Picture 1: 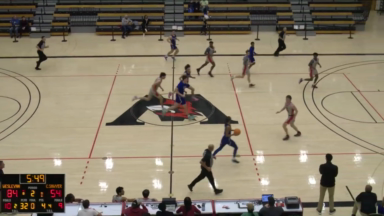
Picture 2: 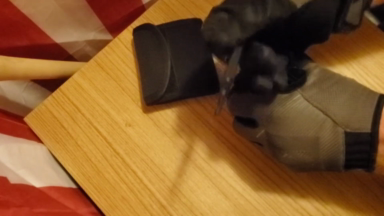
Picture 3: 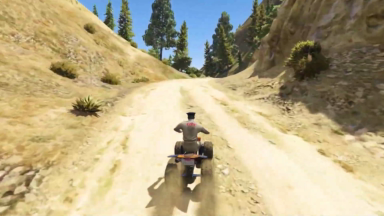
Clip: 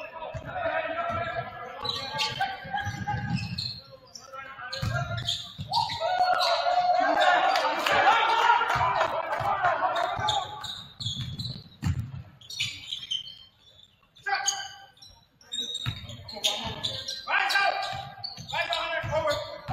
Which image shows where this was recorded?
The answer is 1